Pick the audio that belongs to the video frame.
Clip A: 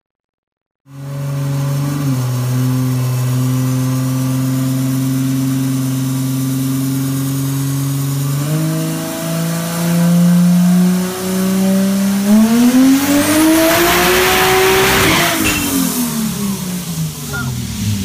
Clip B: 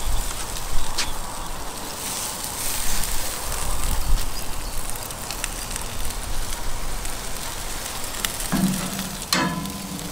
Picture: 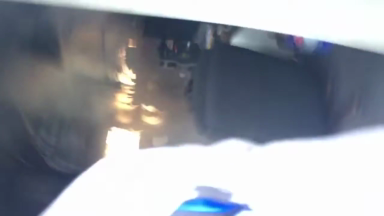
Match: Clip A